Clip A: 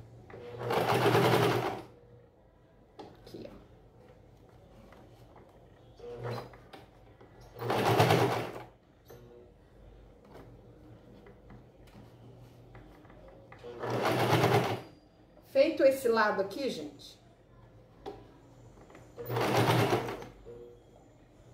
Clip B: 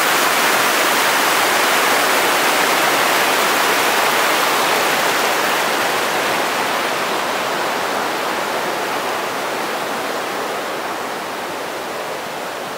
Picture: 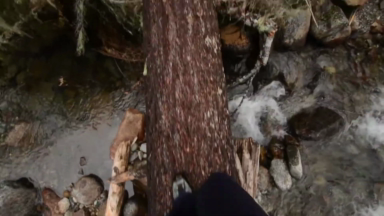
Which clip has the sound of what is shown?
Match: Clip B